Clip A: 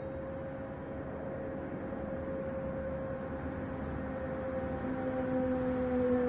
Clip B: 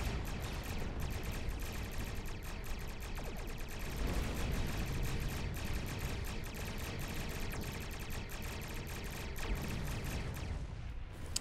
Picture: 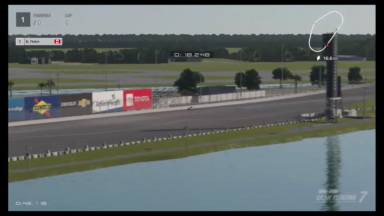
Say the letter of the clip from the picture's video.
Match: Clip A